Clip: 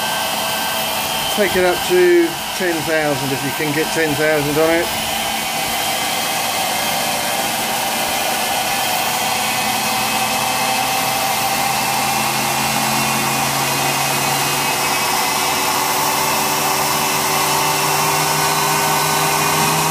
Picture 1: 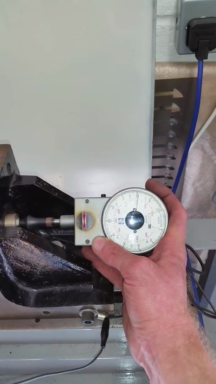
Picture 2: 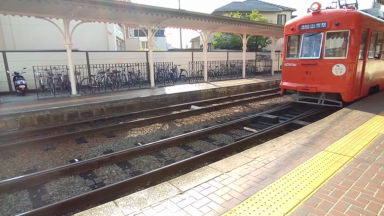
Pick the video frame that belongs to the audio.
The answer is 1